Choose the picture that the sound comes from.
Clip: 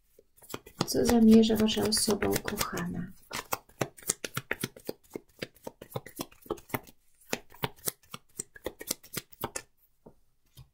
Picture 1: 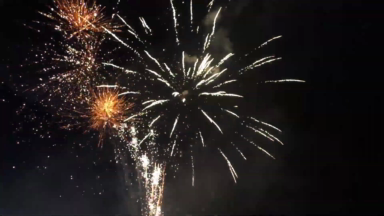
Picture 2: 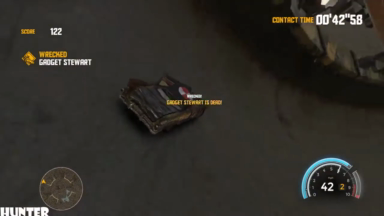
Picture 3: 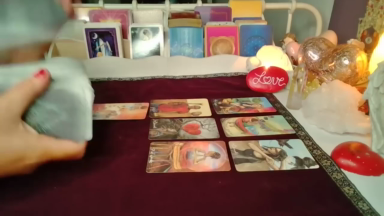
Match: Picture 3